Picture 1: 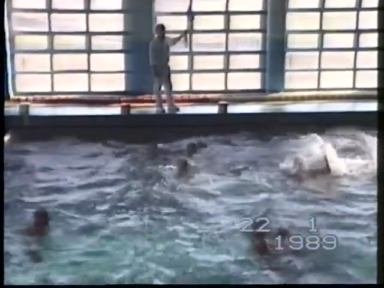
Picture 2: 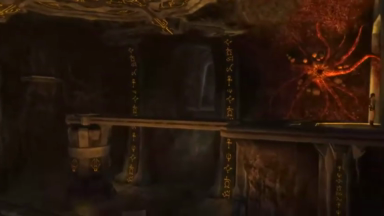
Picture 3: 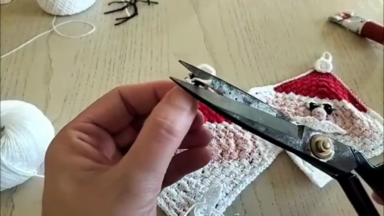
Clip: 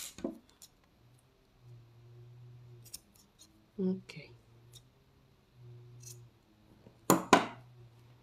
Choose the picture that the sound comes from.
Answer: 3